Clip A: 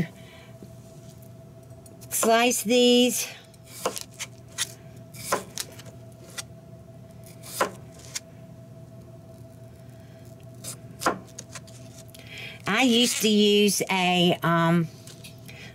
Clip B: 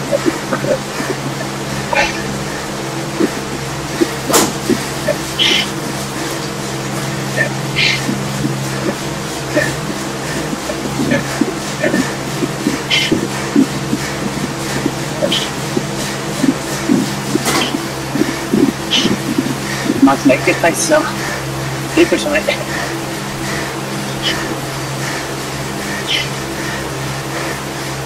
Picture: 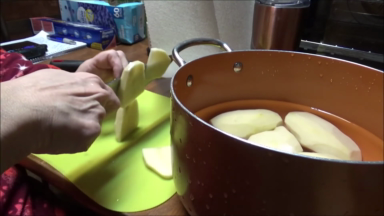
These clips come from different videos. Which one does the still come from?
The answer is A